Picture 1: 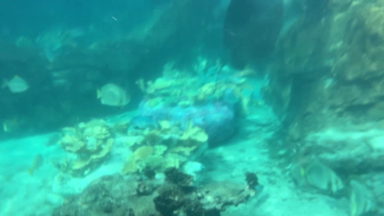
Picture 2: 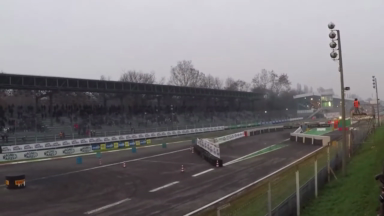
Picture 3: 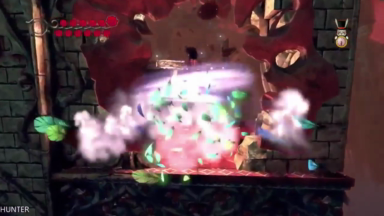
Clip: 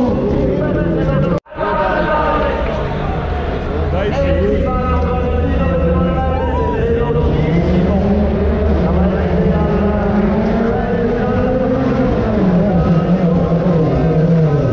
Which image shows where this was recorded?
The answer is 2